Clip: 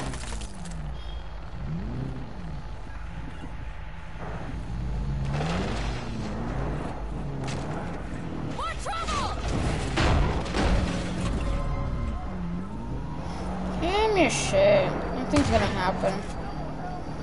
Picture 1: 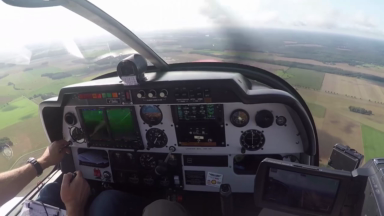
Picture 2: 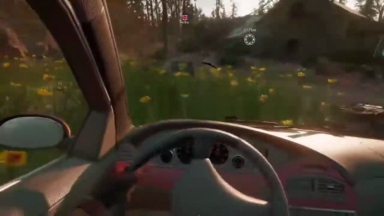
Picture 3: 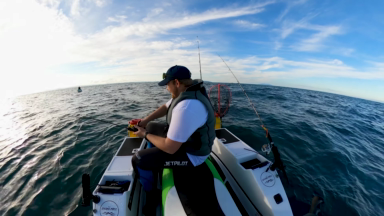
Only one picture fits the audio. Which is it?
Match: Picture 2